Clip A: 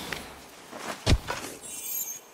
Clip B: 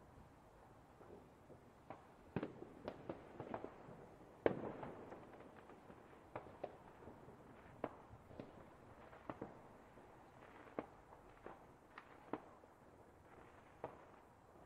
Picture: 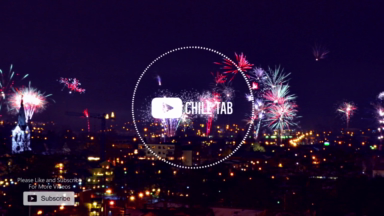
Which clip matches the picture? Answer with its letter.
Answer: B